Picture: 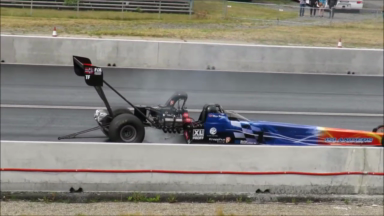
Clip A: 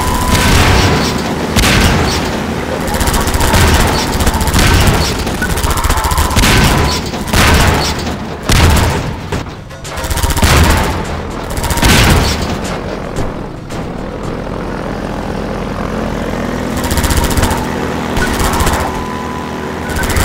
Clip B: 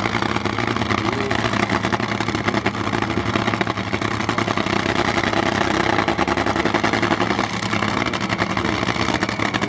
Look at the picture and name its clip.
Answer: B